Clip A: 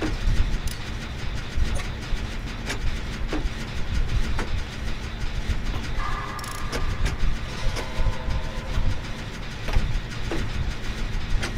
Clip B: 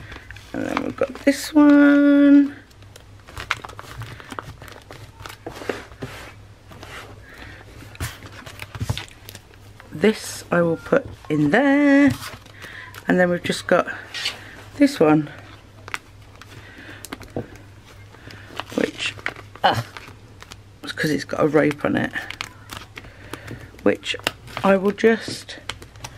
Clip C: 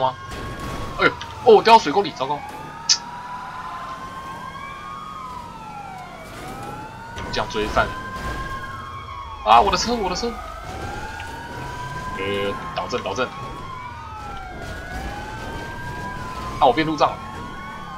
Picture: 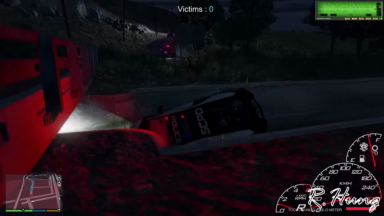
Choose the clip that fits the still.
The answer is C